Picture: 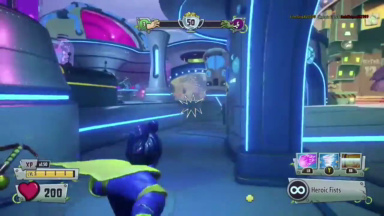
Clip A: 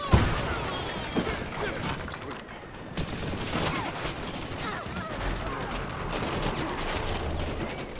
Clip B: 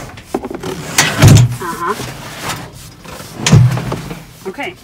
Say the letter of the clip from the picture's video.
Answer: A